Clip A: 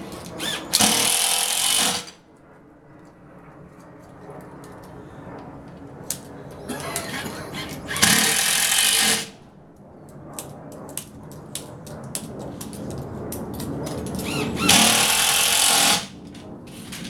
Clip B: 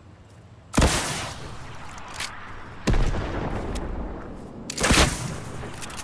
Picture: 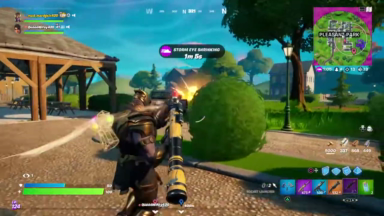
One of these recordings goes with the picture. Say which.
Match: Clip B